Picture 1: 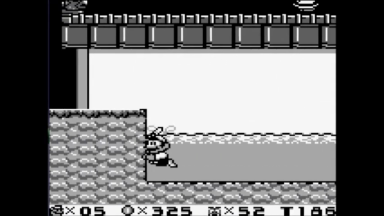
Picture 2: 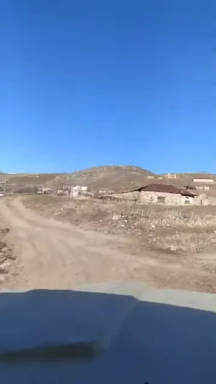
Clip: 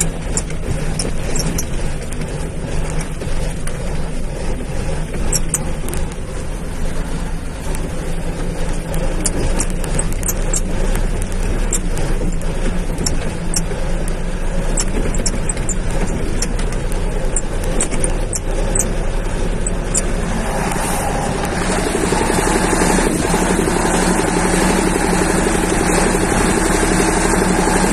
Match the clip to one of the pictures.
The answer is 2